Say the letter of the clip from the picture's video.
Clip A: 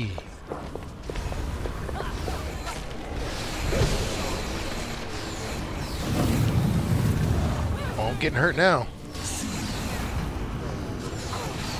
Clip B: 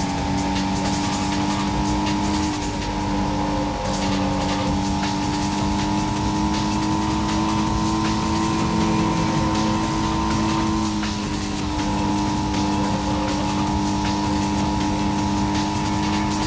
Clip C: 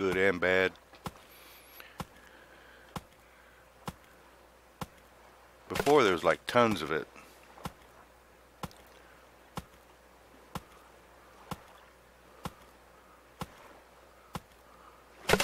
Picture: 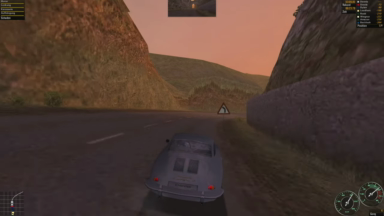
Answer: B